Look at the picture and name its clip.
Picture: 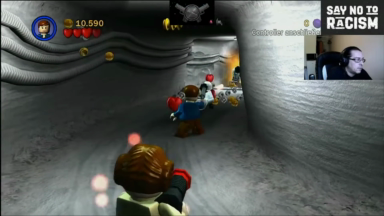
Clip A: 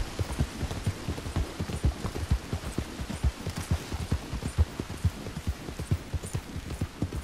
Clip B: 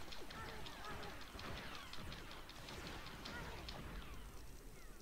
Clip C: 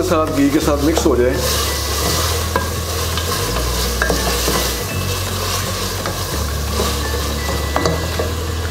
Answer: B